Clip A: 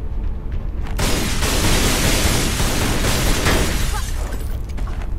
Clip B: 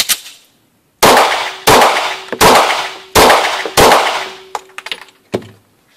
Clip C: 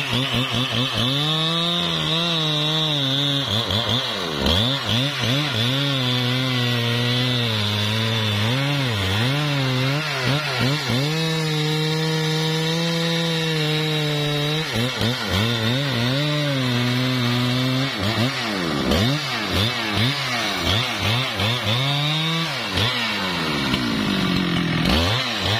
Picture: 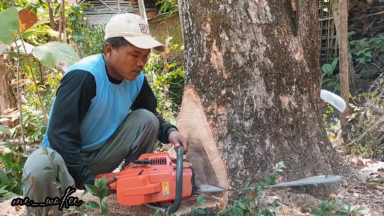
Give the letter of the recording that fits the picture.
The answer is C